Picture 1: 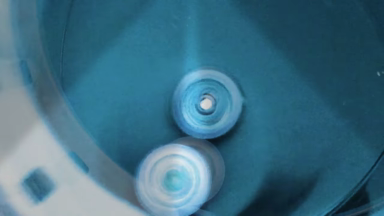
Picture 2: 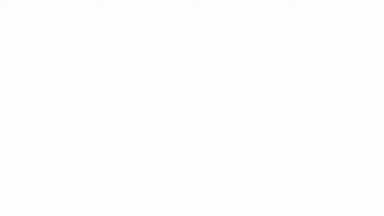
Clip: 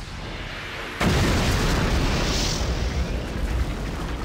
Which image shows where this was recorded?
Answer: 2